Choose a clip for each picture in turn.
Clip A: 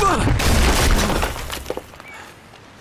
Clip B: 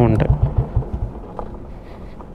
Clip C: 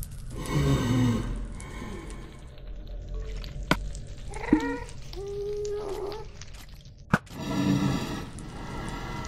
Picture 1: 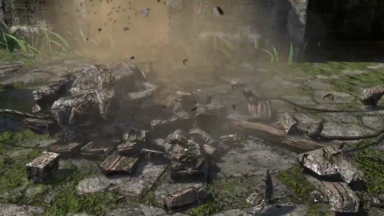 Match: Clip A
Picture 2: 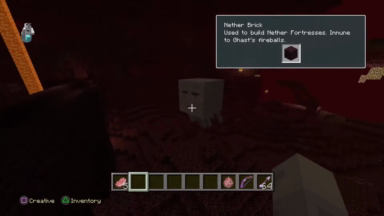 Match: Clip C